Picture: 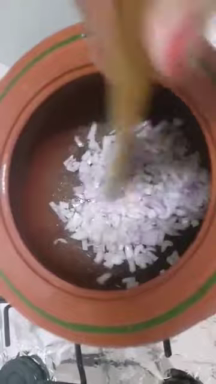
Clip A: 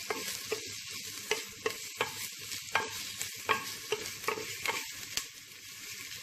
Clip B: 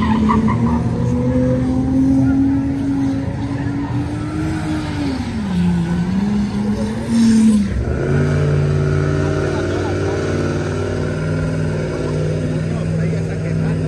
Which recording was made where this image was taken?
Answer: A